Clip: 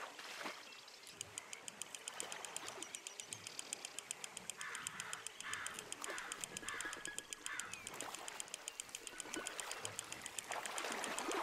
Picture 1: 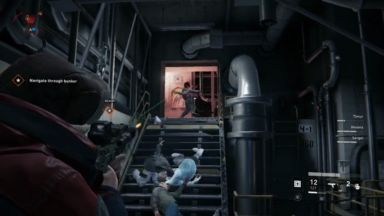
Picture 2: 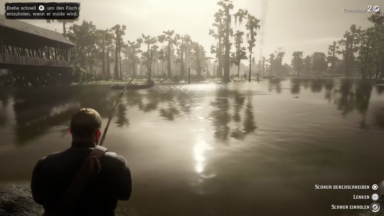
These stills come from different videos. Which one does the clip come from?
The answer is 2